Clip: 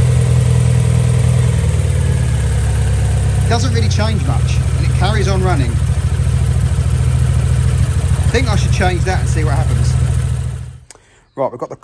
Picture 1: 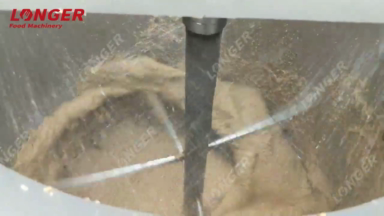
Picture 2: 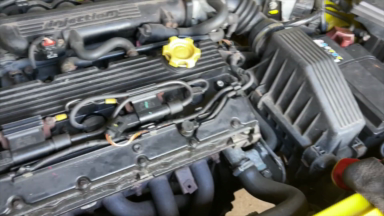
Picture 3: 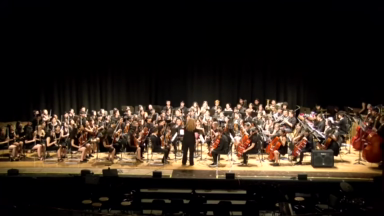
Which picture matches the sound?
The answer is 2